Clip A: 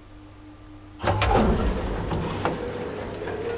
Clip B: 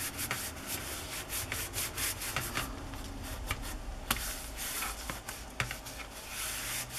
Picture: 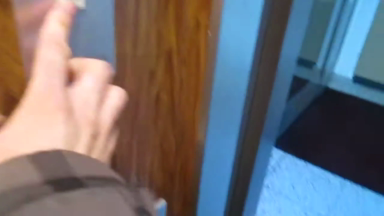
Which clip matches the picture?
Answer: A